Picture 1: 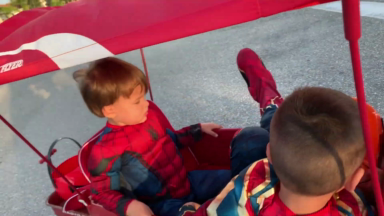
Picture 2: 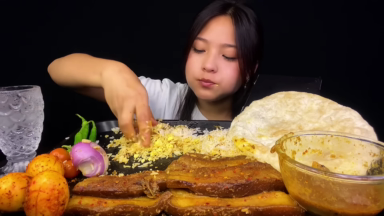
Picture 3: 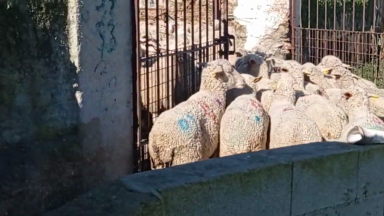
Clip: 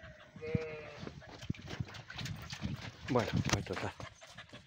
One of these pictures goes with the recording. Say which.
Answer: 3